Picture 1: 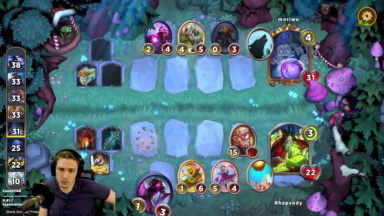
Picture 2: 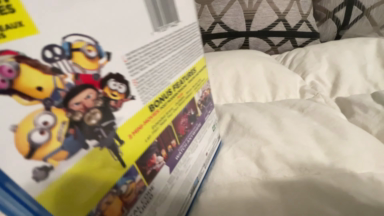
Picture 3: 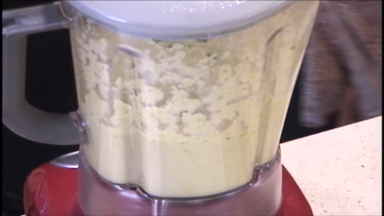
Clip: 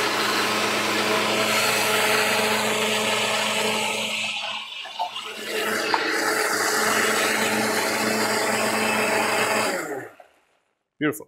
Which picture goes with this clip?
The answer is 3